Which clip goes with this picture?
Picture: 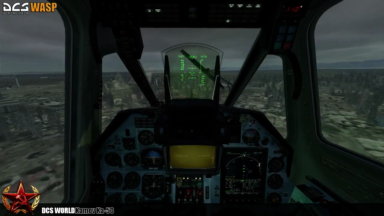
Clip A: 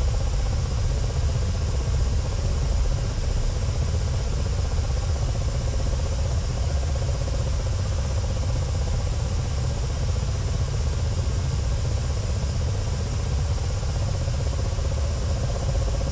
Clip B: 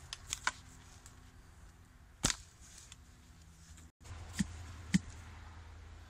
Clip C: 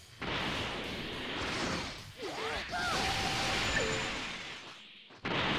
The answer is A